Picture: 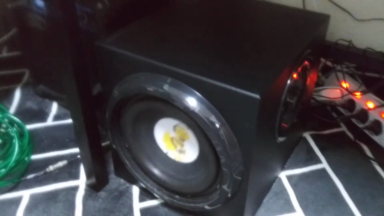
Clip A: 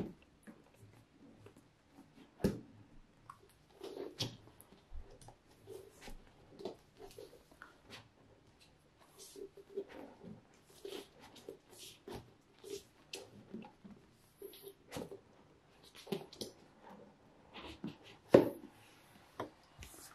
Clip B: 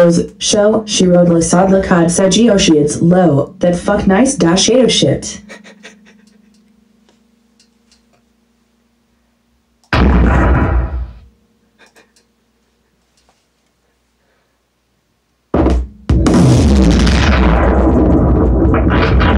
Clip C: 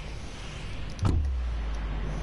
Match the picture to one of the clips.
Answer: B